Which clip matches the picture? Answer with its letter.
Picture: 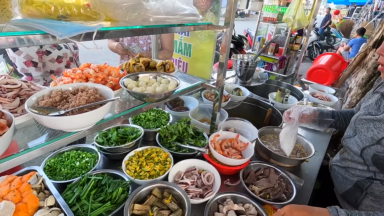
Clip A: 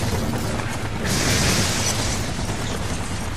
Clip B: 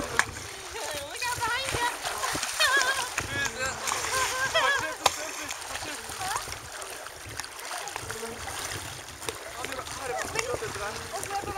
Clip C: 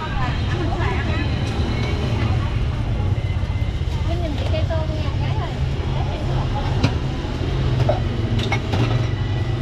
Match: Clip C